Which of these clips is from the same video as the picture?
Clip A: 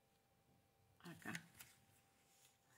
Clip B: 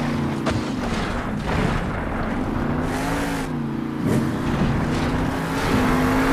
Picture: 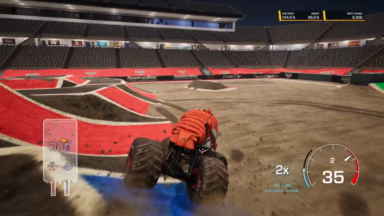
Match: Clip B